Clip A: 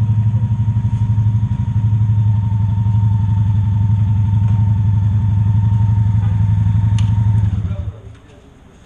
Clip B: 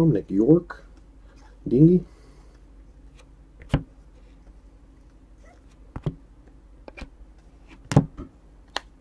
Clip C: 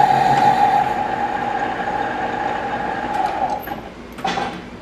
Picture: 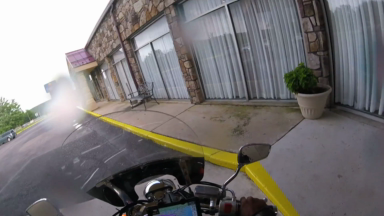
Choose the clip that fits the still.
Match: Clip A